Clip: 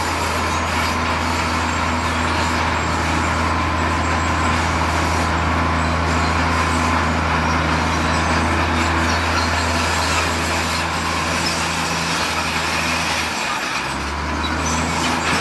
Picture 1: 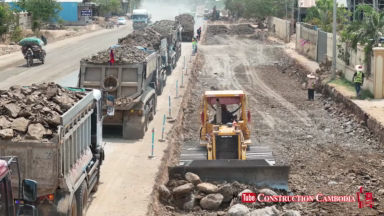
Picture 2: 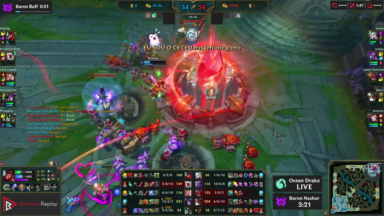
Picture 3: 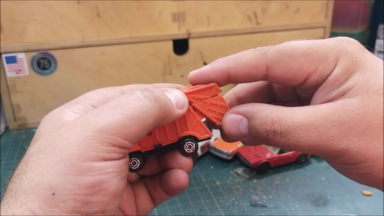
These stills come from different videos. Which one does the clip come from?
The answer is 1